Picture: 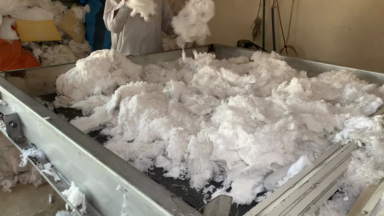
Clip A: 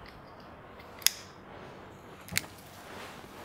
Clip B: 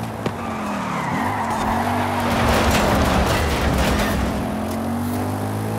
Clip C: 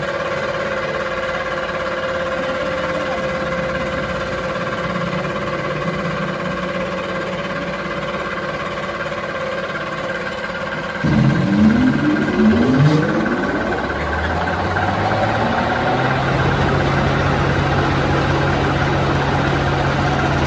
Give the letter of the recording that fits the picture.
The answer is C